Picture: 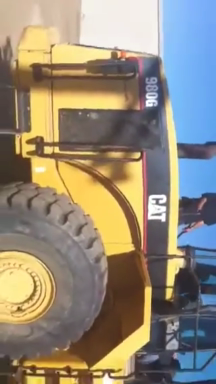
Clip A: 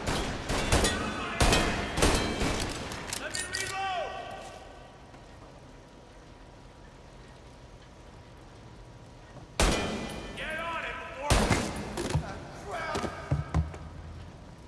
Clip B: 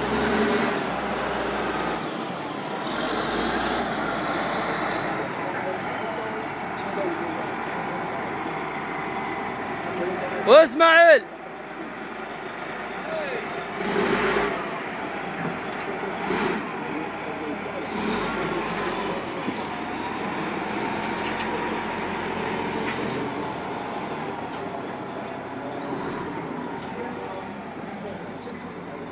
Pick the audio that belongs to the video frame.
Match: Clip B